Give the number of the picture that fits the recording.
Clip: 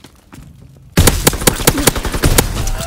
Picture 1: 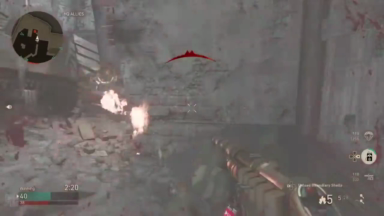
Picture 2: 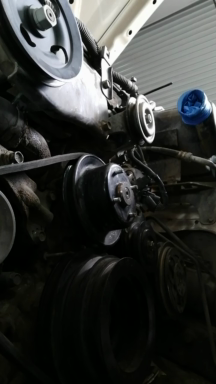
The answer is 1